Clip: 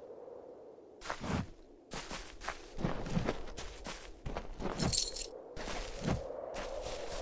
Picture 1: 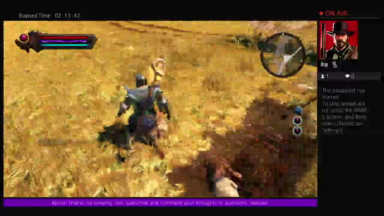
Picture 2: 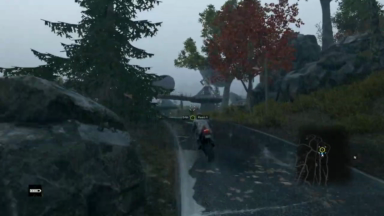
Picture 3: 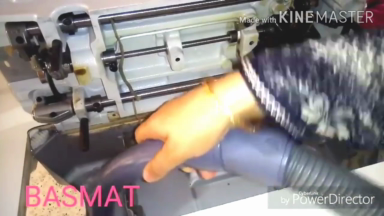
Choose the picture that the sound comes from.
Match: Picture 1